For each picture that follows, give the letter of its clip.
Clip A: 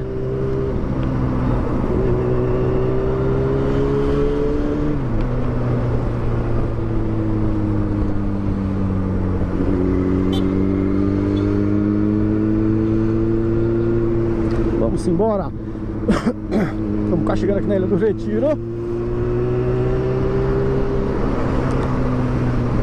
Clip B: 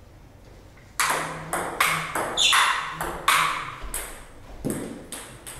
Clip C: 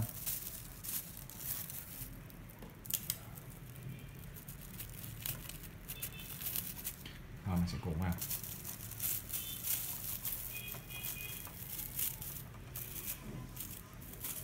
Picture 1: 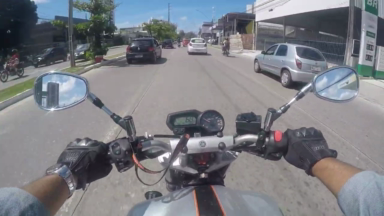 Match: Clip A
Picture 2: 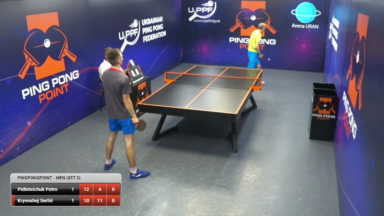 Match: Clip B